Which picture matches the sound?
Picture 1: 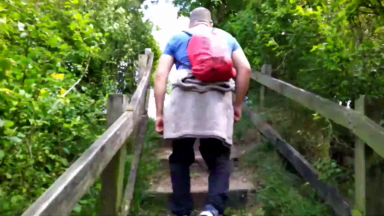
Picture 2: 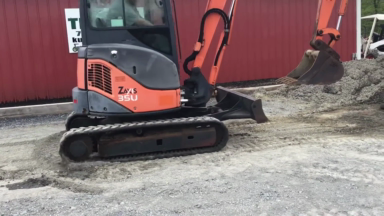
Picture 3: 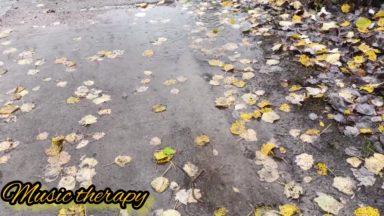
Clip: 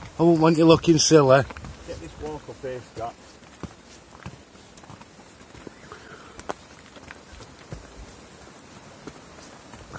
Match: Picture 1